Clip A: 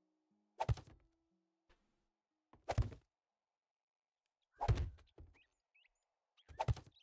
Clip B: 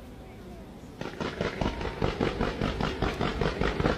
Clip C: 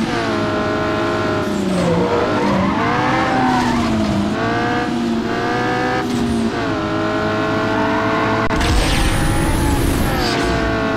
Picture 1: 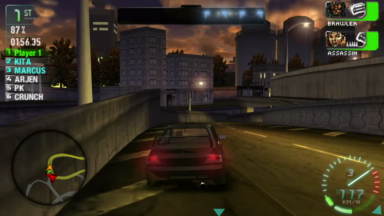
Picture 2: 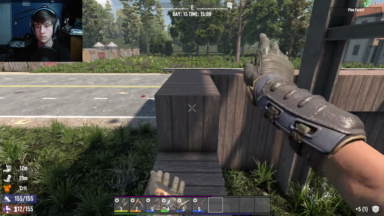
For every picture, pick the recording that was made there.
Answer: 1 C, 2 A